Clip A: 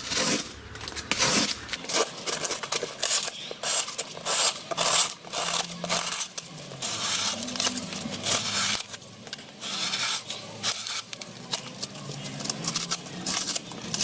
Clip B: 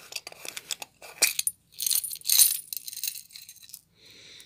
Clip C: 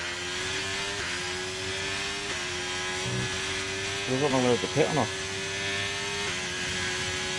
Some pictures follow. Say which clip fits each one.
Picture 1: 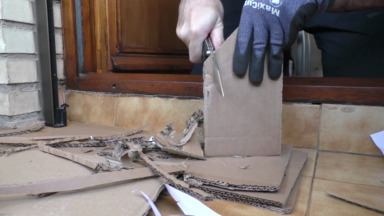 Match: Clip A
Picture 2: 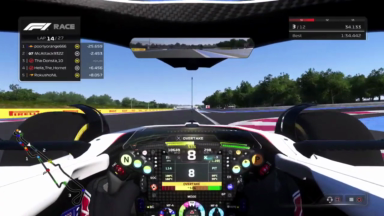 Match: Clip C